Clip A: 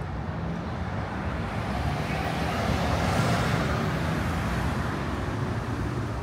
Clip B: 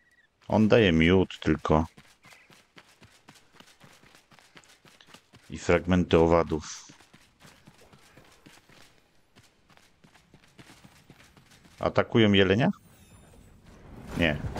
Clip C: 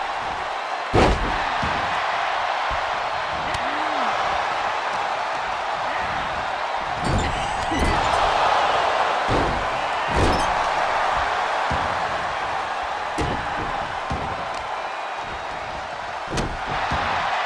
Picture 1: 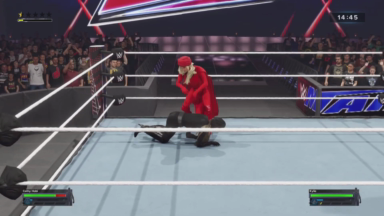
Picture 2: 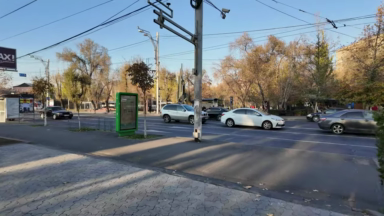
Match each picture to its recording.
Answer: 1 C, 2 A